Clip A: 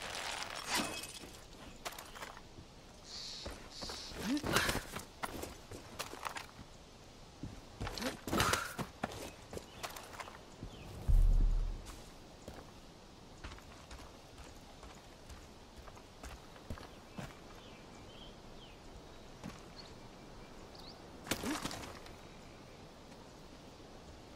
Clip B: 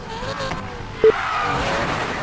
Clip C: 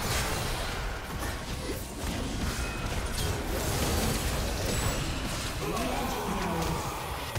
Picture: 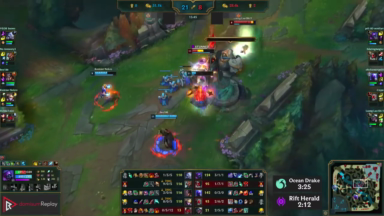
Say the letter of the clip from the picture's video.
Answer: C